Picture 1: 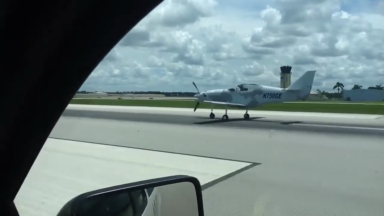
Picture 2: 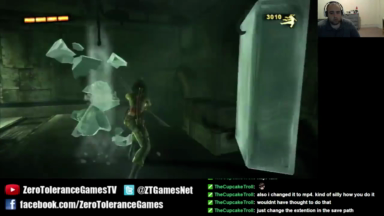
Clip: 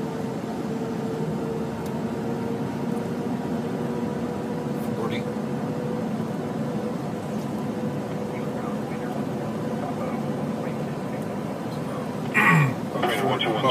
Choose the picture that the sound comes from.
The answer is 1